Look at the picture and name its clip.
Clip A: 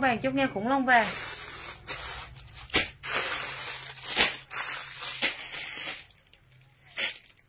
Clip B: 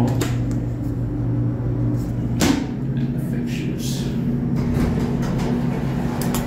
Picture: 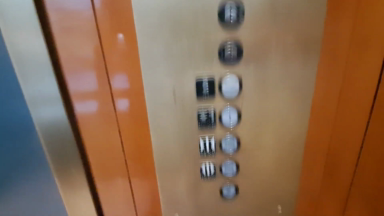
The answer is B